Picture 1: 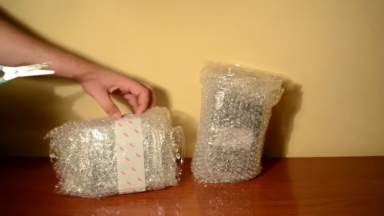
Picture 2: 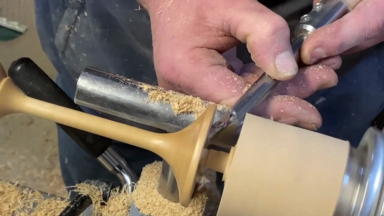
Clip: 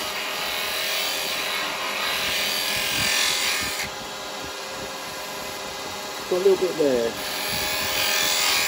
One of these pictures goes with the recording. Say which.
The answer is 2